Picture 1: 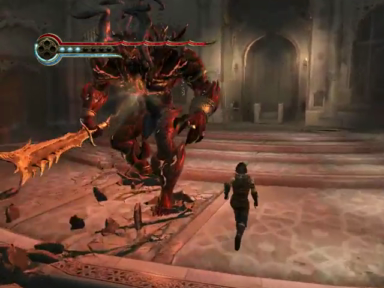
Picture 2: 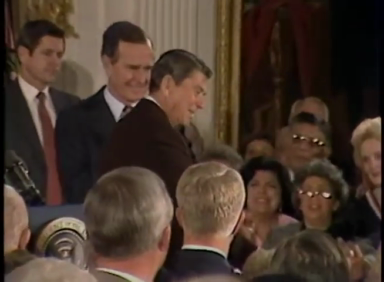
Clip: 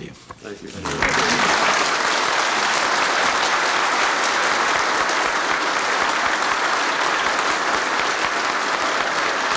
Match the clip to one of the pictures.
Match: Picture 2